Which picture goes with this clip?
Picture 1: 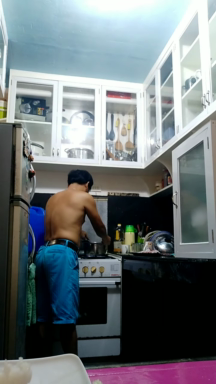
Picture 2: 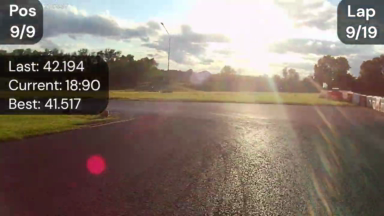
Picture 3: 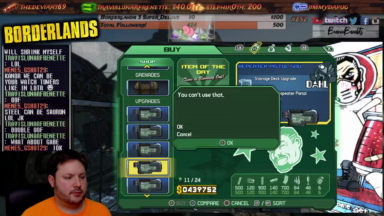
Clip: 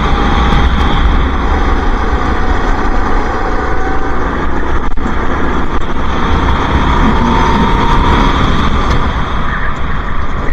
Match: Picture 2